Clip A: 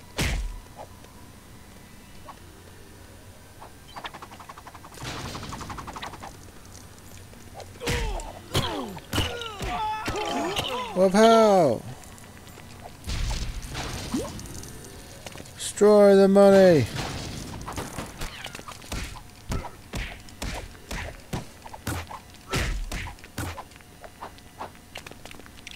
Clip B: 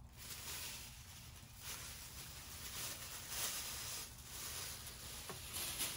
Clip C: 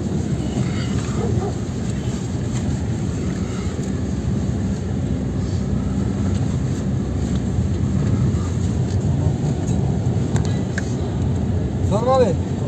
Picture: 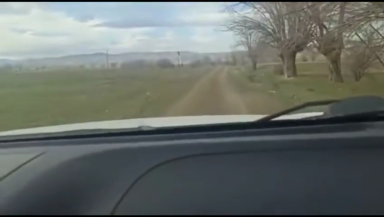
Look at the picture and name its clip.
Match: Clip C